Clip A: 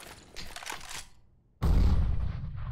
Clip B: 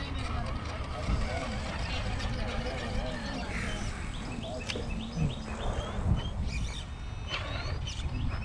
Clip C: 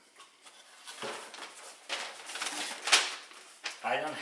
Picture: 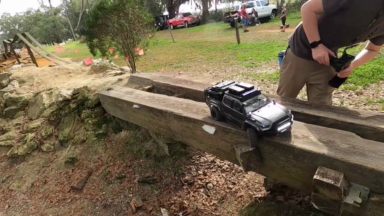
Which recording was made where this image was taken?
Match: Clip B